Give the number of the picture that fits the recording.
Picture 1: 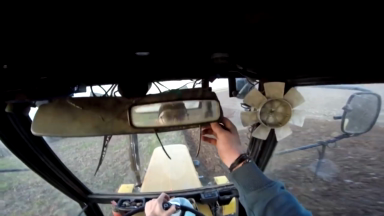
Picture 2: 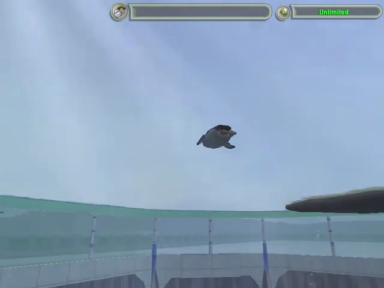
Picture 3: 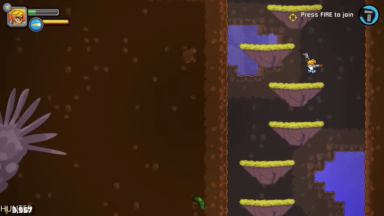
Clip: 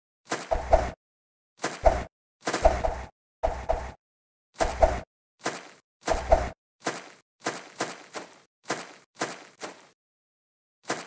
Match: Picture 3